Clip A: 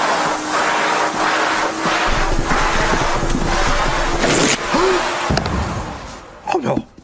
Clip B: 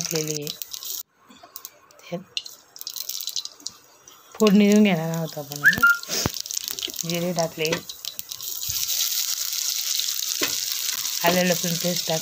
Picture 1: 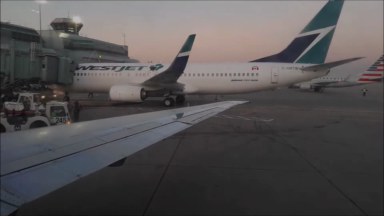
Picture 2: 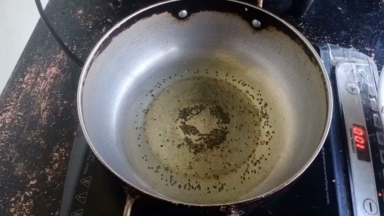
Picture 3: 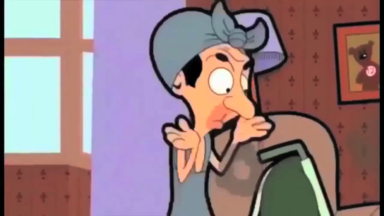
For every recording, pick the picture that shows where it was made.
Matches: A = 3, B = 2